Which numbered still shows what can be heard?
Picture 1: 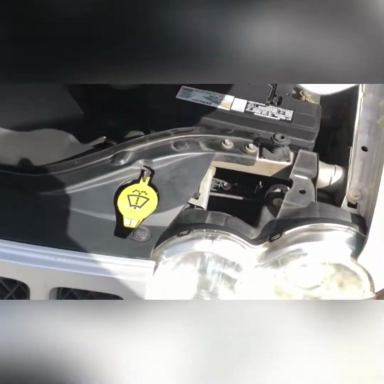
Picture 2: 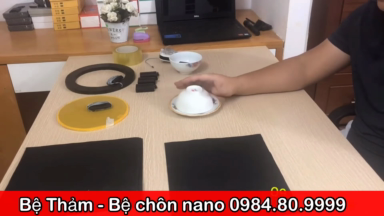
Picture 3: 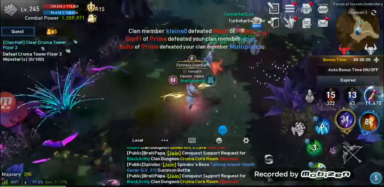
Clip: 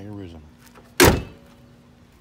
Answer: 1